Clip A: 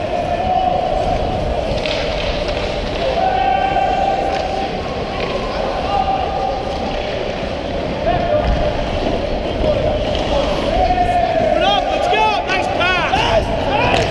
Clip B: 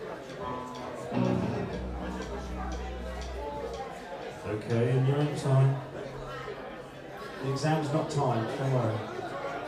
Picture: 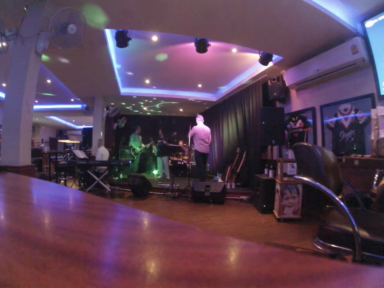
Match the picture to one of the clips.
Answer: B